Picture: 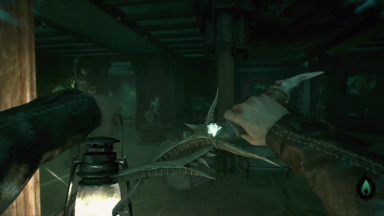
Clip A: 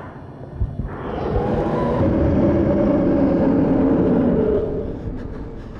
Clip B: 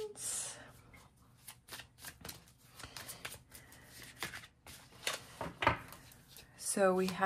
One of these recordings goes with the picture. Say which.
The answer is A